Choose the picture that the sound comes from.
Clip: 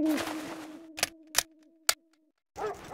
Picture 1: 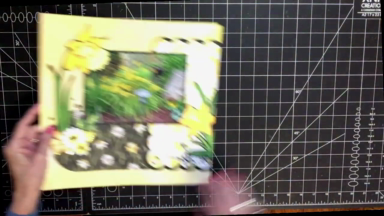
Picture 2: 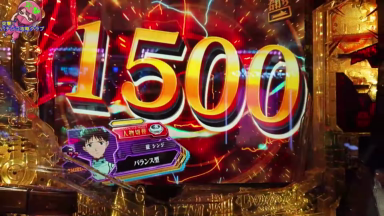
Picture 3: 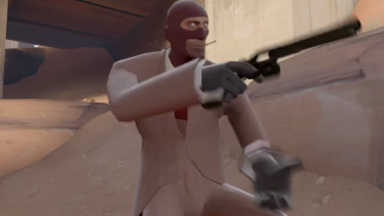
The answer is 3